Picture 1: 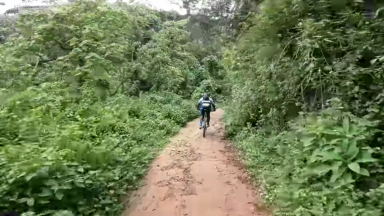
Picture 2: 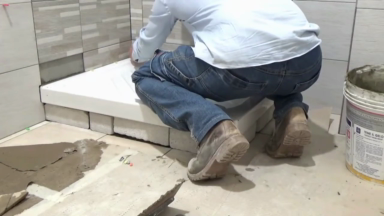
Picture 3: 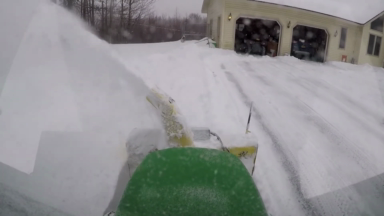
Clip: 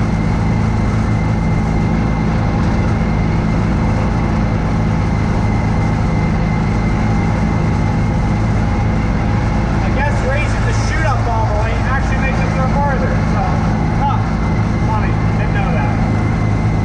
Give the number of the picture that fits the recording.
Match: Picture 3